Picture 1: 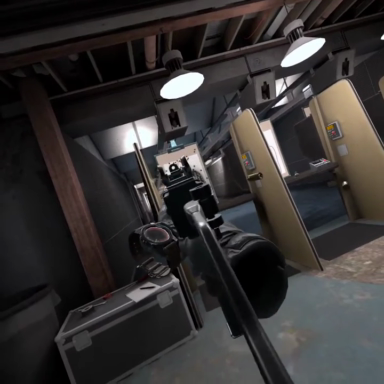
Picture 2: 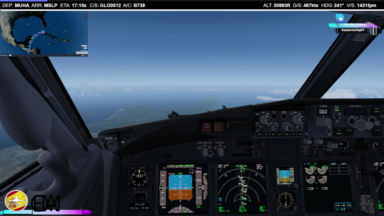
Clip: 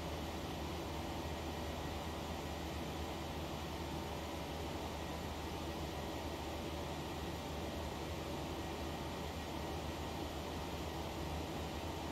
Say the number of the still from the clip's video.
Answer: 2